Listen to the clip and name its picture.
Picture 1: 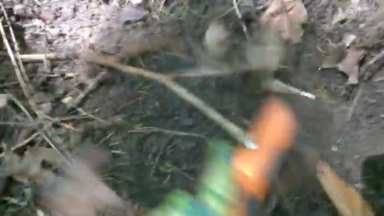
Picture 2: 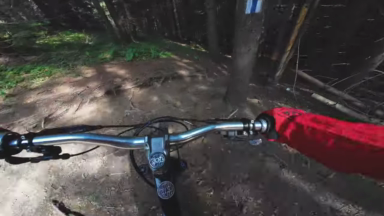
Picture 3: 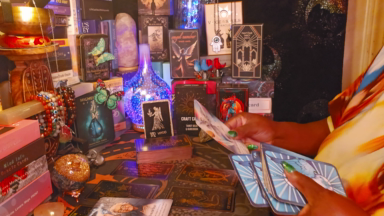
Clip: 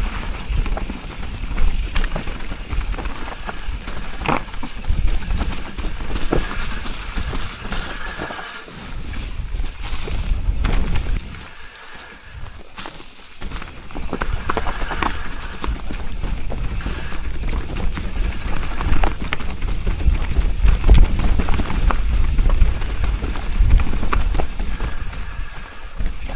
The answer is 2